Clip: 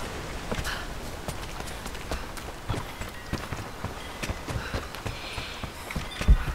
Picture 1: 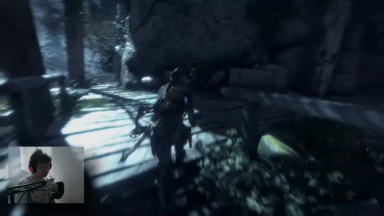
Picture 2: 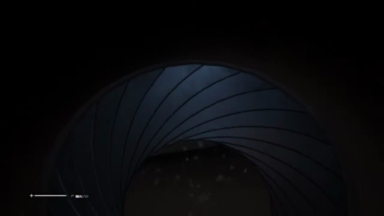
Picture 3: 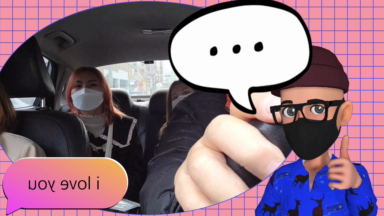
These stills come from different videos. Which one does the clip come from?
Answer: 1